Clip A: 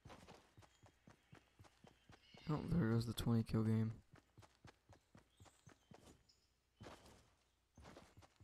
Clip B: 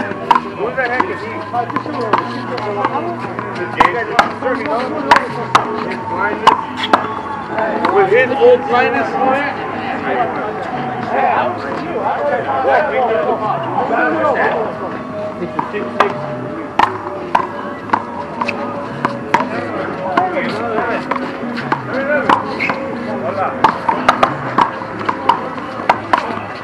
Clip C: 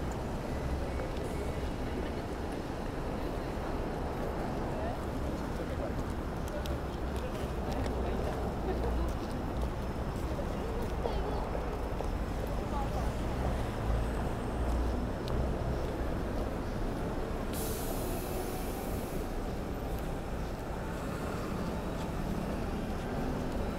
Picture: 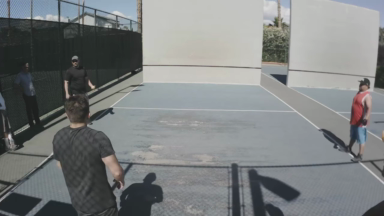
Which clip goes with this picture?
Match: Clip B